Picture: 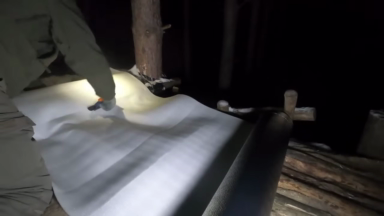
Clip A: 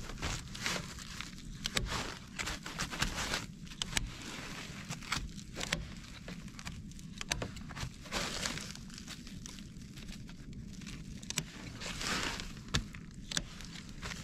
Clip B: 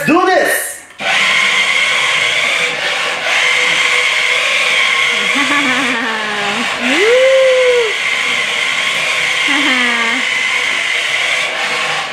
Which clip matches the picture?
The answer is A